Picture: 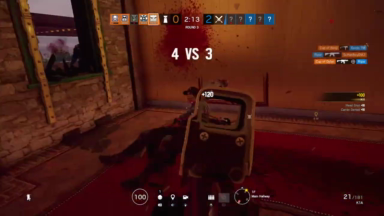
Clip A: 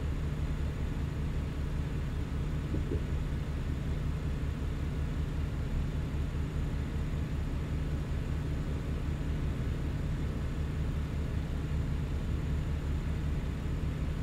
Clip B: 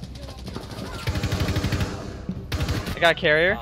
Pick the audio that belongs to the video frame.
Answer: B